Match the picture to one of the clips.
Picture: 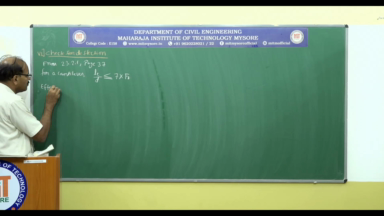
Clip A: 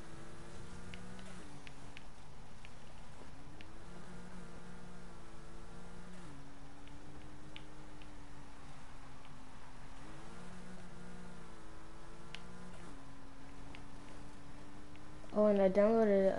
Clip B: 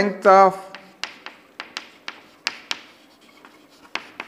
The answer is B